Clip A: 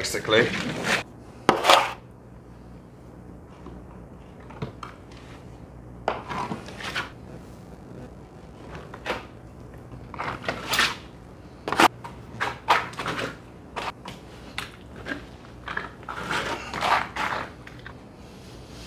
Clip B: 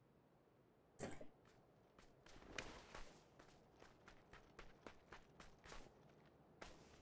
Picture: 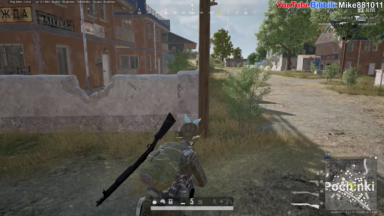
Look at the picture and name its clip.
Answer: B